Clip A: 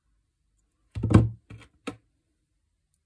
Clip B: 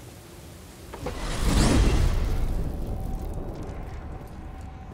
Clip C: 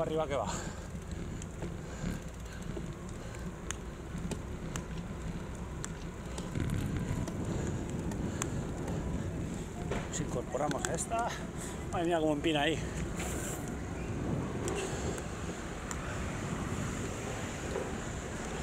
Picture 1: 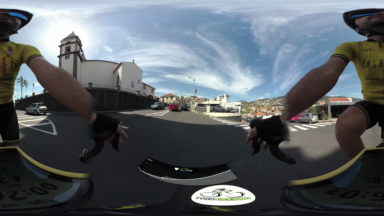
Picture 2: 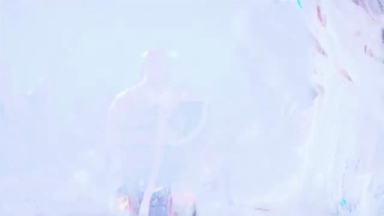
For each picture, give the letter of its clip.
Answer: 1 C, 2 B